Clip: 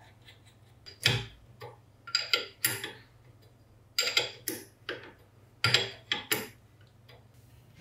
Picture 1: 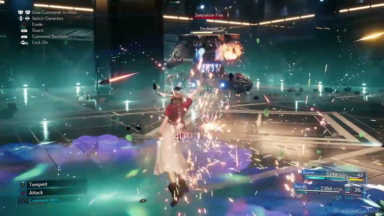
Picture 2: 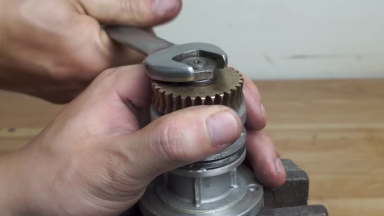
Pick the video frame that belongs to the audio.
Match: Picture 2